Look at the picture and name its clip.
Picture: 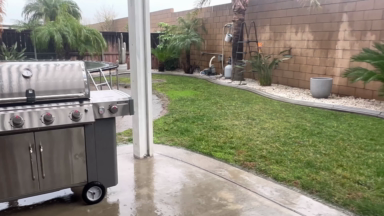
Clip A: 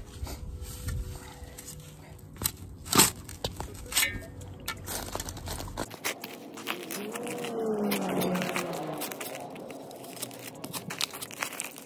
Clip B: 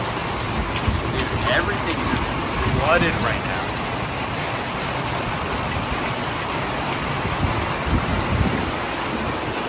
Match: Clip B